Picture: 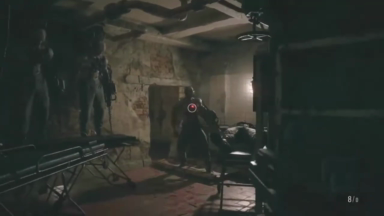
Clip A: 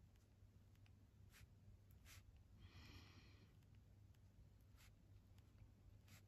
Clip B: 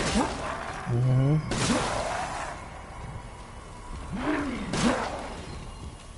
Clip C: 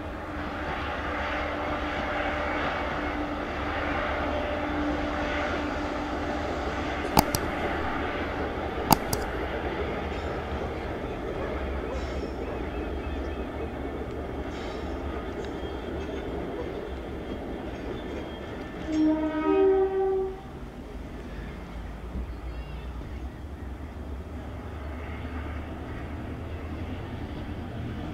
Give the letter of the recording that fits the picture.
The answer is B